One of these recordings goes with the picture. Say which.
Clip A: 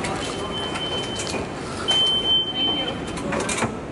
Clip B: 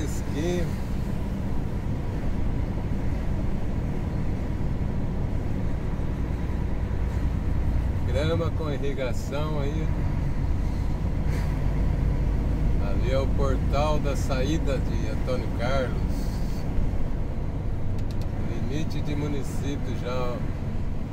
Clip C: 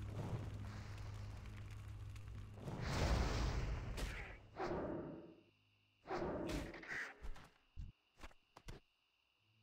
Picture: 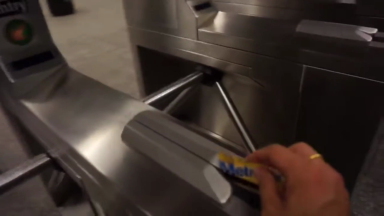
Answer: A